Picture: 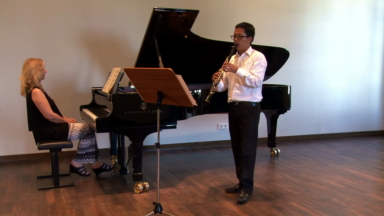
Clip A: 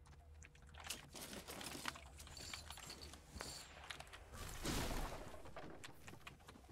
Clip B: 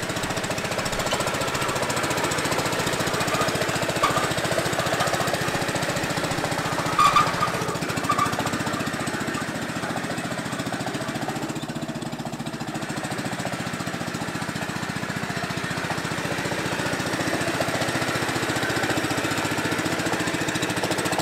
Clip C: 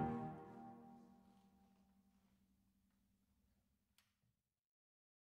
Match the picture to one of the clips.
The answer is C